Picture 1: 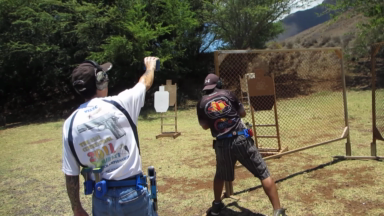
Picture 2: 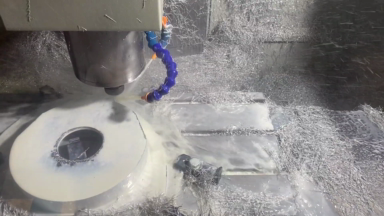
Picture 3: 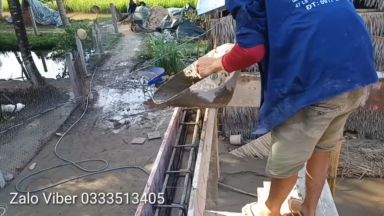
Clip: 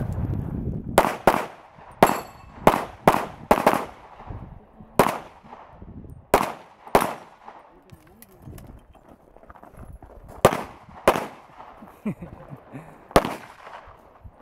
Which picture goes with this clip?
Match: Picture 1